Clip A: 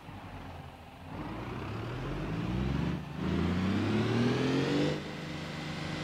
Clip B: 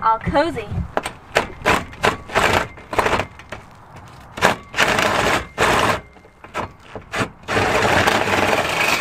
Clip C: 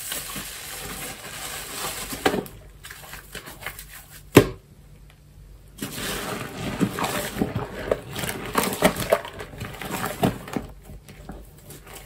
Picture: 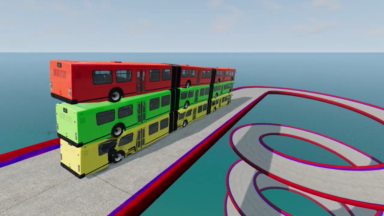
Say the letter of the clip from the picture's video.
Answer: A